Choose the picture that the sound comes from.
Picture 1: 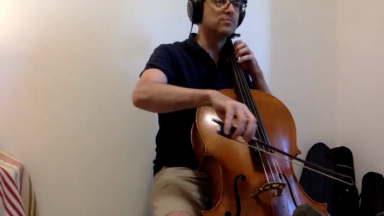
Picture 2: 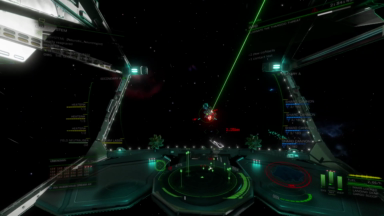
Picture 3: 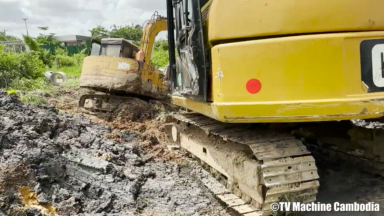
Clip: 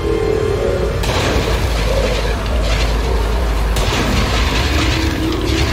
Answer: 2